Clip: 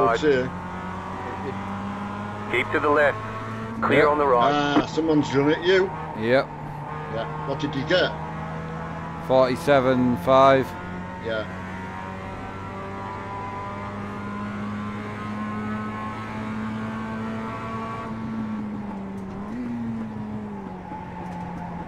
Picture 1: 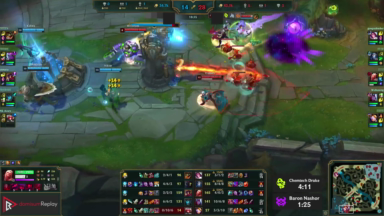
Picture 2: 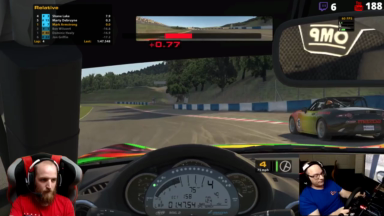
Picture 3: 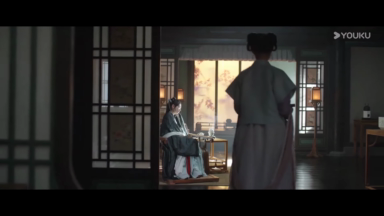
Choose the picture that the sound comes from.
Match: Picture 2